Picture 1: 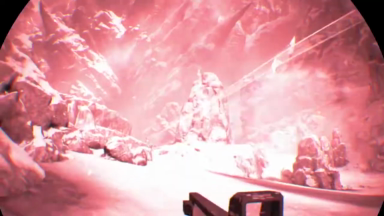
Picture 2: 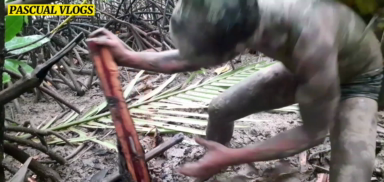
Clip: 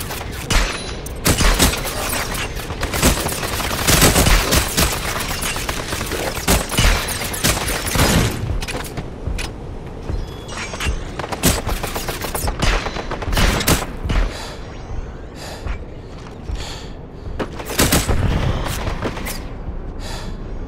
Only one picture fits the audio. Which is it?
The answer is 1